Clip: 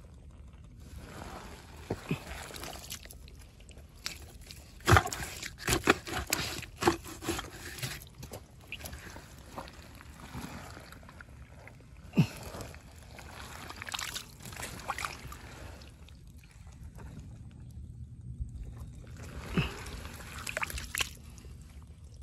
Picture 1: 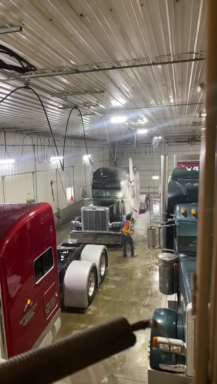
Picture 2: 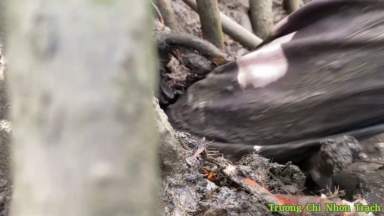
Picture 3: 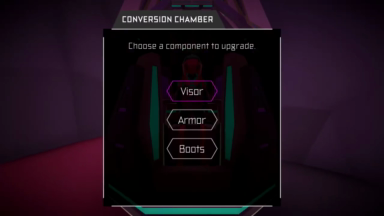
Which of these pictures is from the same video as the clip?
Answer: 2